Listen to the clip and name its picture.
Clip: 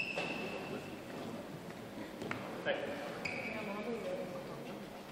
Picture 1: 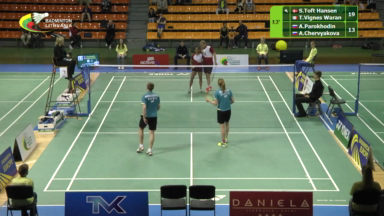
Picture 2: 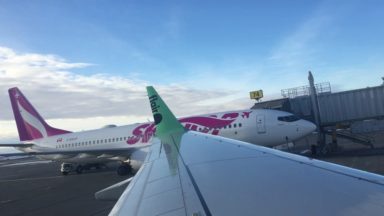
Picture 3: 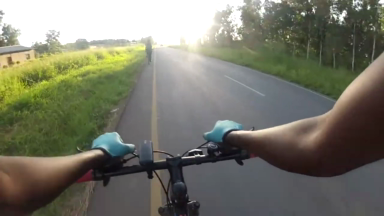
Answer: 1